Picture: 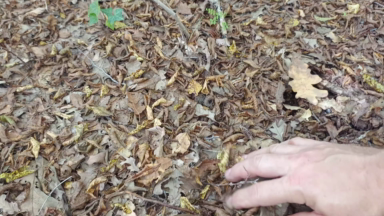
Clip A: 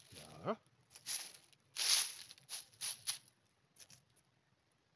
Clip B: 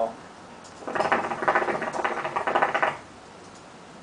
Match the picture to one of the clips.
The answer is A